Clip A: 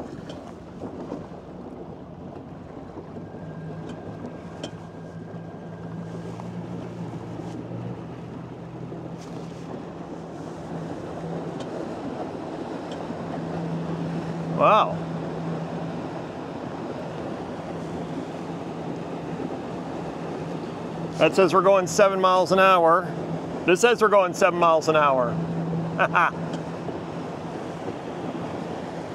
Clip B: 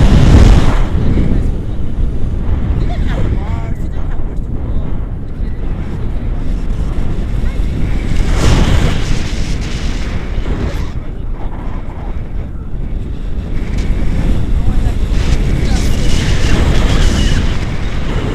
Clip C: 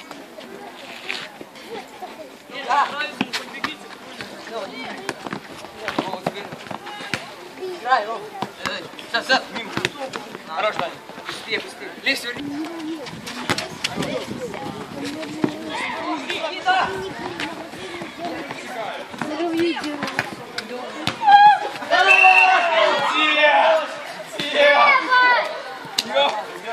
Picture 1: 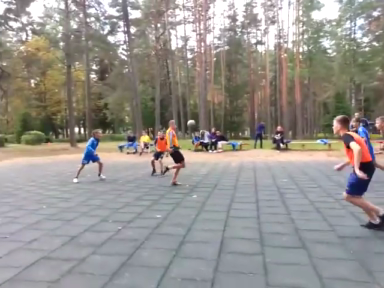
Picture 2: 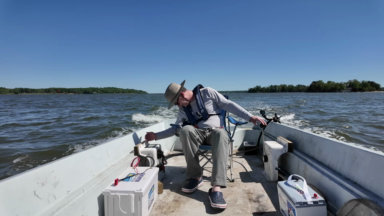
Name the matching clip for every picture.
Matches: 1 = C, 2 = A